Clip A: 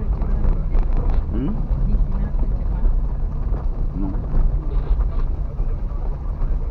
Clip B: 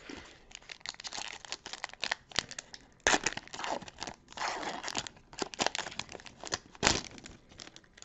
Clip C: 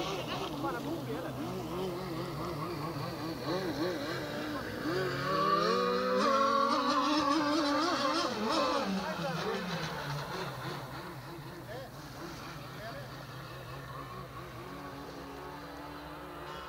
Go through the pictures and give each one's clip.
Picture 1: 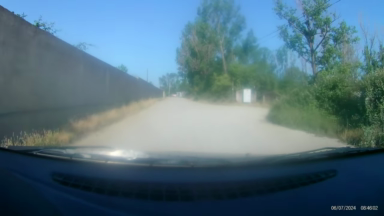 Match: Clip A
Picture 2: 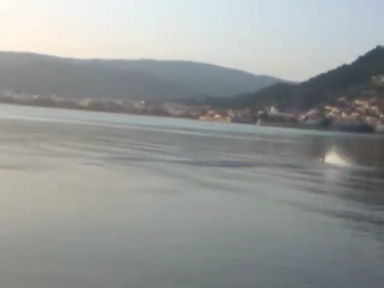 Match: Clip C